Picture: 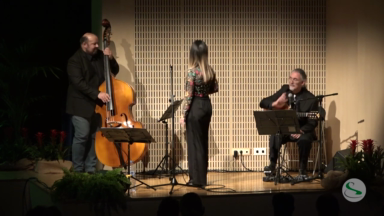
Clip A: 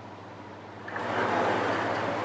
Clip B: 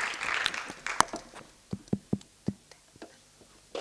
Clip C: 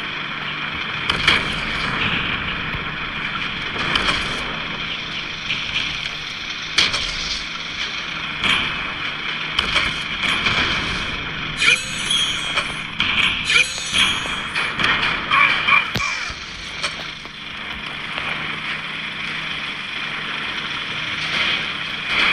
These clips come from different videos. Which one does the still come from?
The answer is B